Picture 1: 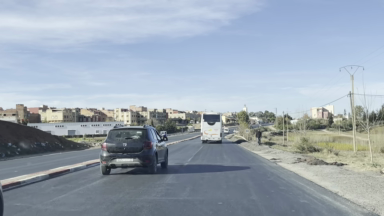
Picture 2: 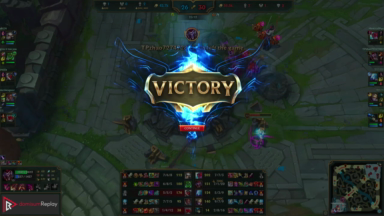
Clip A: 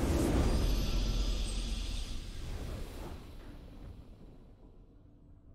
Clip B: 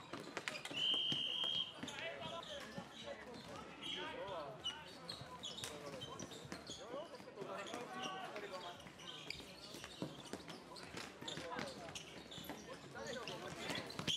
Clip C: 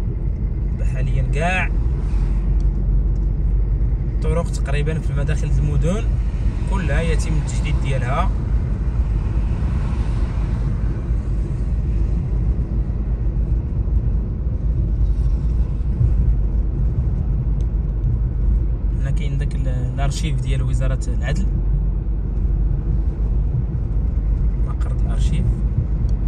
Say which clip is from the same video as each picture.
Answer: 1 C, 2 A